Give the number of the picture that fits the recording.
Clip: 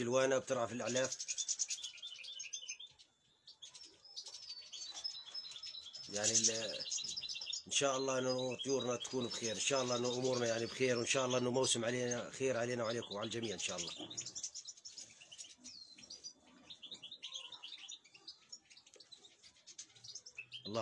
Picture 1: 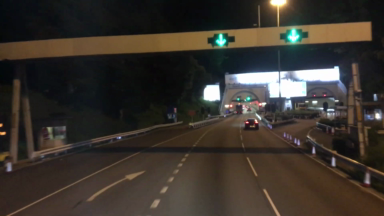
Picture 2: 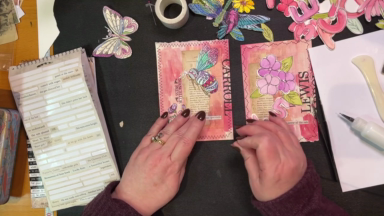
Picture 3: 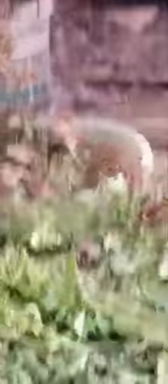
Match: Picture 3